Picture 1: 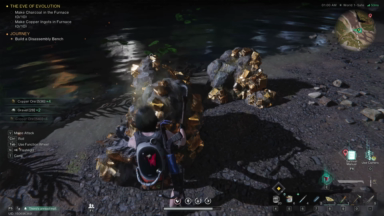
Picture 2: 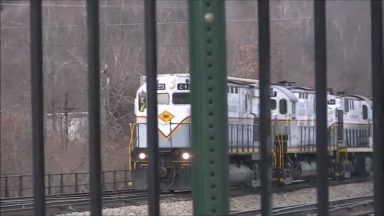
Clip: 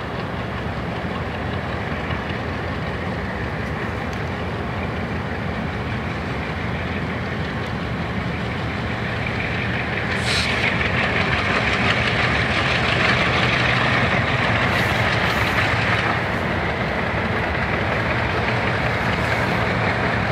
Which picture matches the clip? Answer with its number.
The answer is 2